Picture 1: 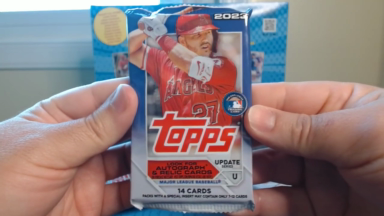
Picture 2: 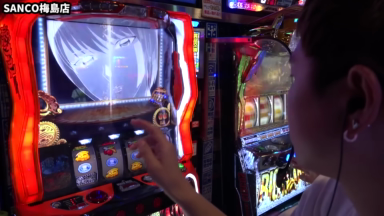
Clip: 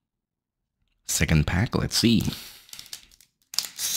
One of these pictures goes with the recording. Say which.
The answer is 1